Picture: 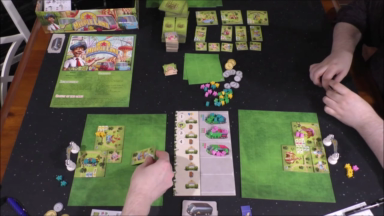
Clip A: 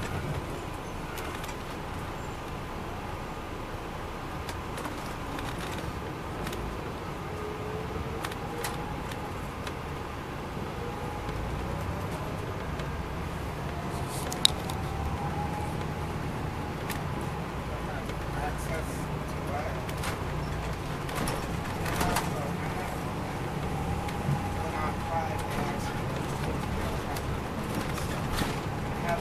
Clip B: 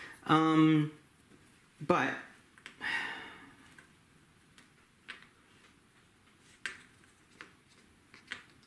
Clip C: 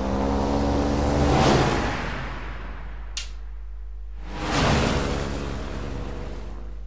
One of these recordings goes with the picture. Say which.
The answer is B